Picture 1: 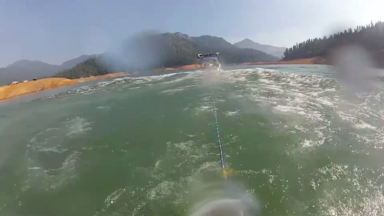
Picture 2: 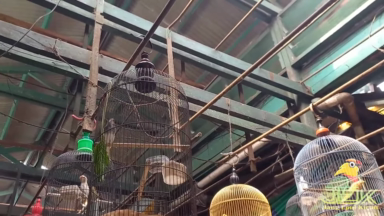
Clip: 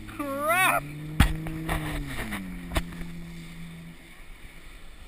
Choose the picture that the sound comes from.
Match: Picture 1